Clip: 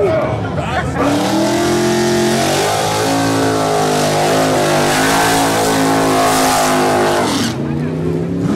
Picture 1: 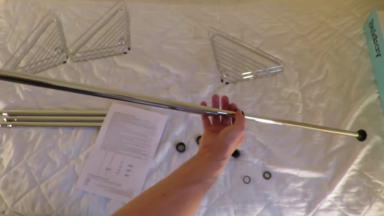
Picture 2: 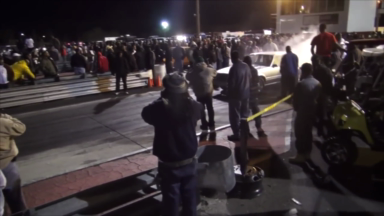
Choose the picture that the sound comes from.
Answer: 2